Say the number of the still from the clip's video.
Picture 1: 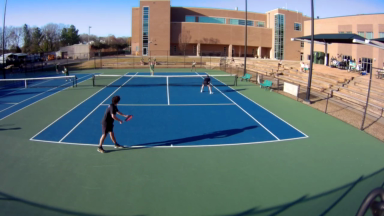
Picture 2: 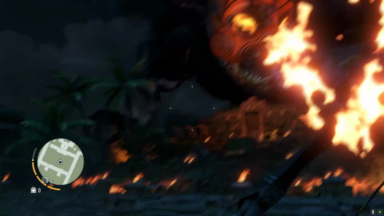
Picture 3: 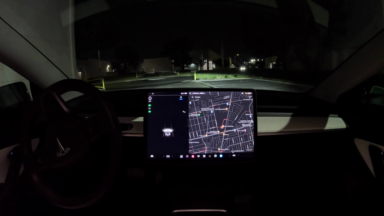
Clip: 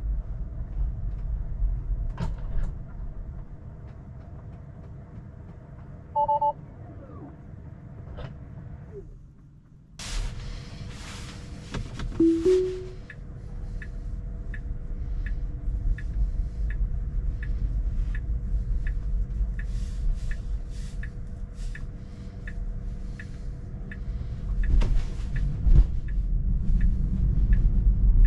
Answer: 3